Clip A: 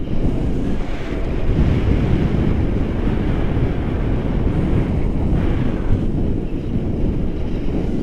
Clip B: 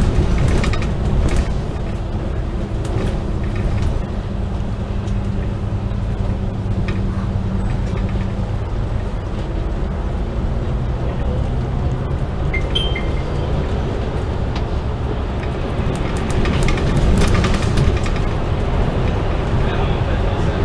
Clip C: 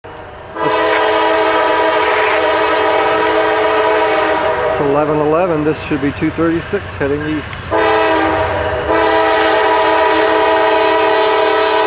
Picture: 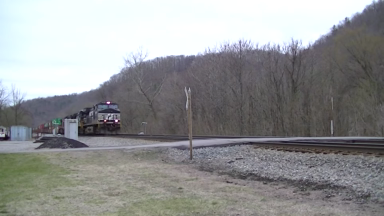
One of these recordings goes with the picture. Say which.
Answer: C